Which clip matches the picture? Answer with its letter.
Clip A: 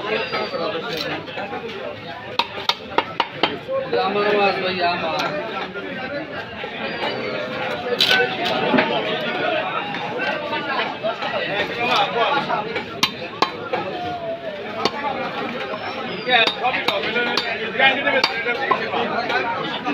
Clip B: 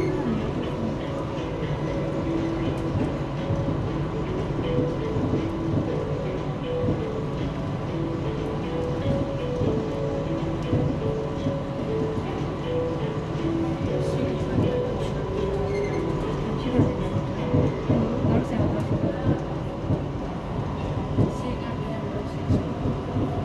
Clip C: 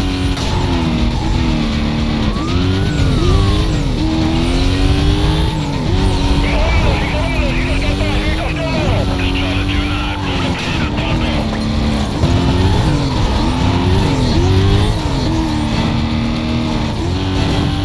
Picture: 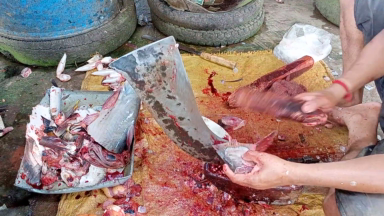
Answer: A